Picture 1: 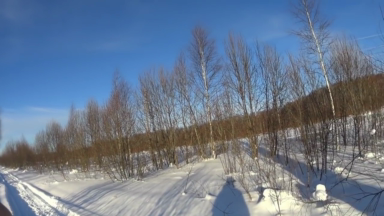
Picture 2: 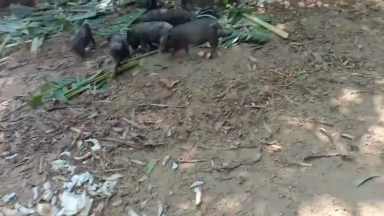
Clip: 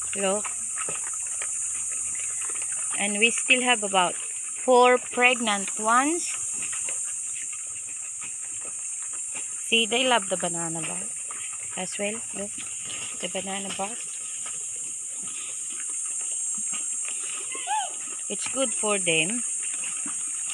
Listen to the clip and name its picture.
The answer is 2